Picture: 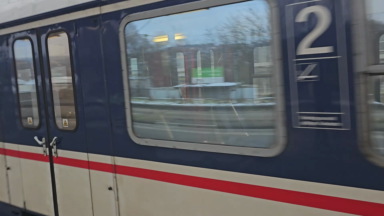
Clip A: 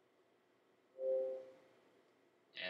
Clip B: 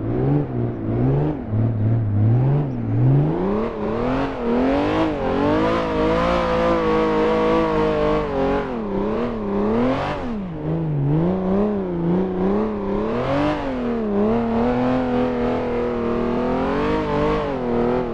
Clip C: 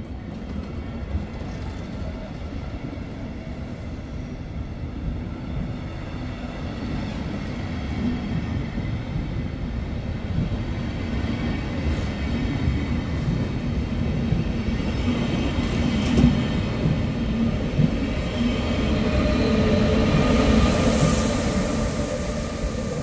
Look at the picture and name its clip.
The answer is C